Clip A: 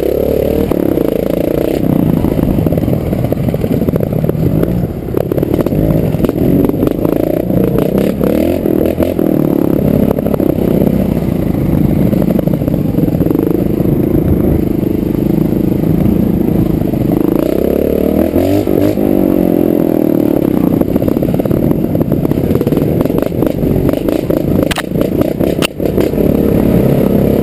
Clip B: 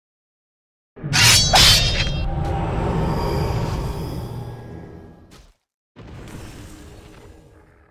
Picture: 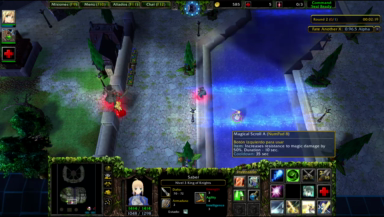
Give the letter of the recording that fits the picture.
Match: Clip B